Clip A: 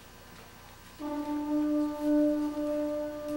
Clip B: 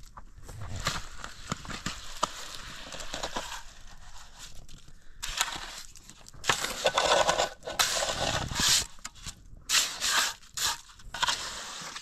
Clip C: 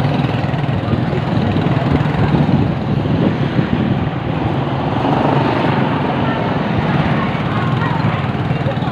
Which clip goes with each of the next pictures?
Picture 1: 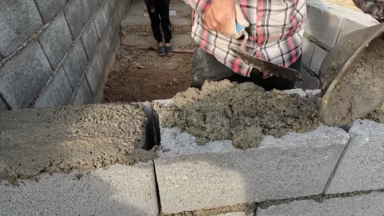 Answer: B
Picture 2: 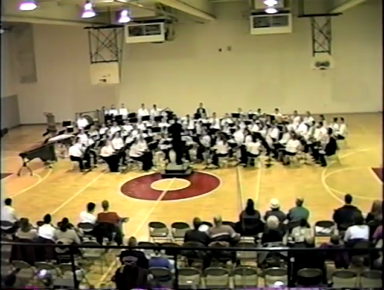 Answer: A